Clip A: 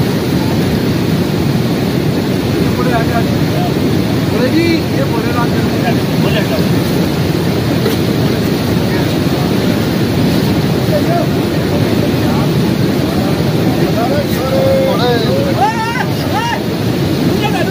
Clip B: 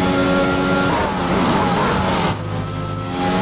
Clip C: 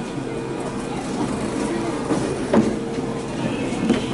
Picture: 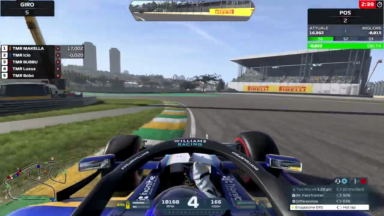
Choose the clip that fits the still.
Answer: B